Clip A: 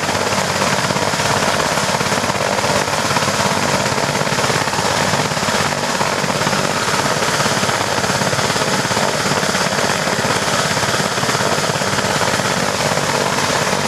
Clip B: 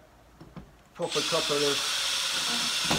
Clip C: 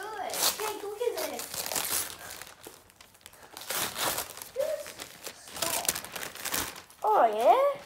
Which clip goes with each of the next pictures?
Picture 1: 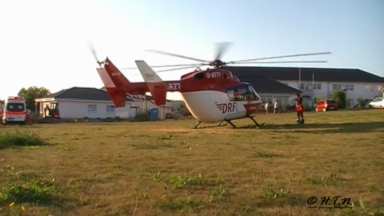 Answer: A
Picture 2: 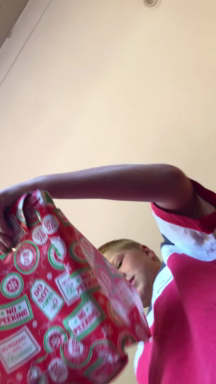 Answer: C